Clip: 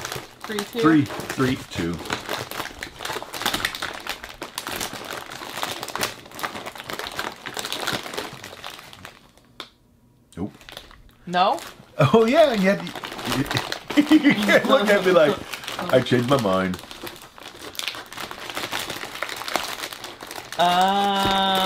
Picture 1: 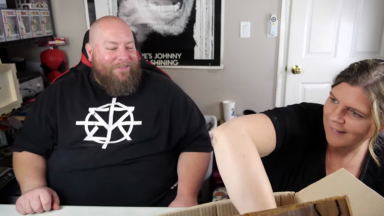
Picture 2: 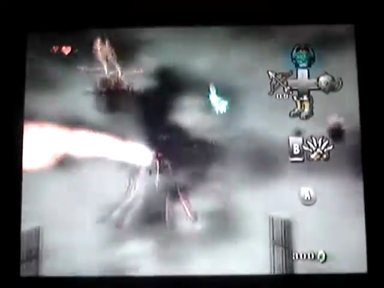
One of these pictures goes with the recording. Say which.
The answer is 1